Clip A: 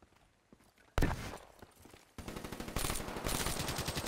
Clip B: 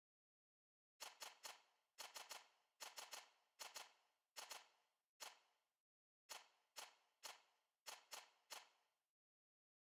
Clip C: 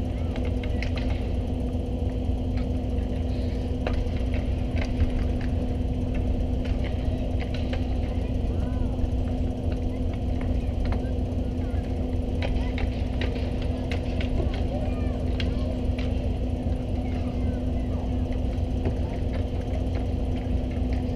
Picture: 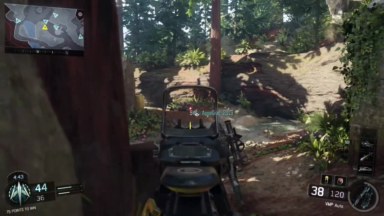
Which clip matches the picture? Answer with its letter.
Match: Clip A